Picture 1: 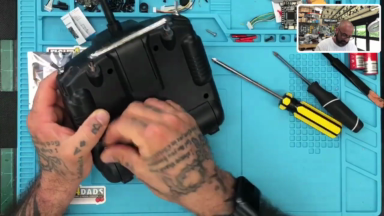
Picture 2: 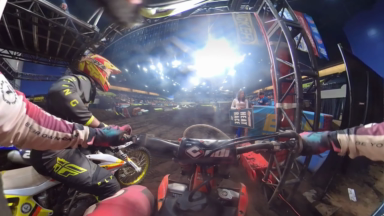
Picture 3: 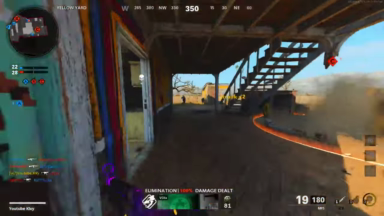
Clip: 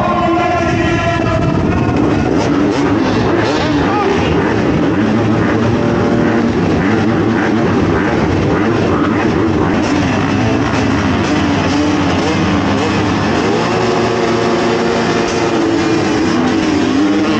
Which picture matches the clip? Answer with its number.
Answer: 2